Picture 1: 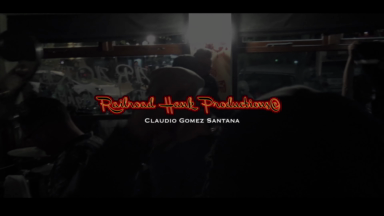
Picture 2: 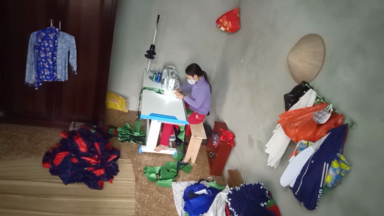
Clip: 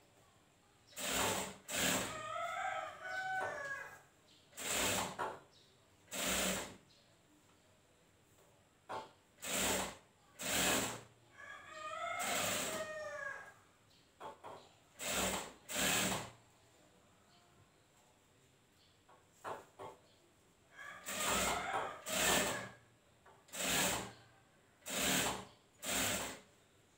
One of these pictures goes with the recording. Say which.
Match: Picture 2